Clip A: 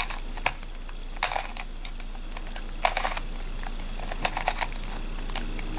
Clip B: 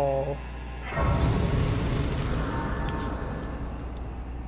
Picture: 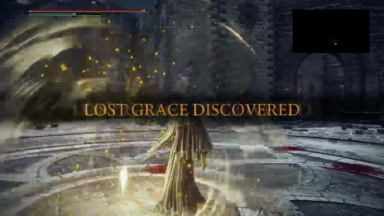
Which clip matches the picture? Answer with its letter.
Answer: B